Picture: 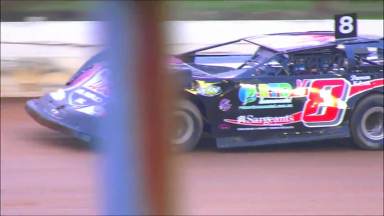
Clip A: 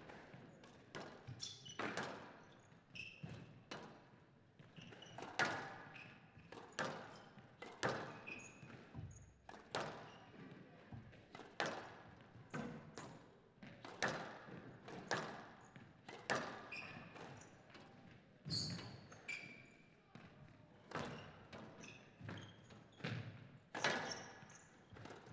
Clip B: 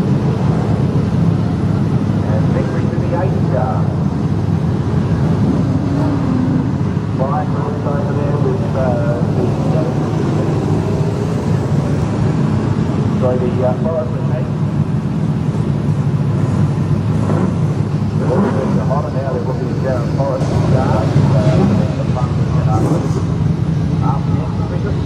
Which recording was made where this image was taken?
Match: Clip B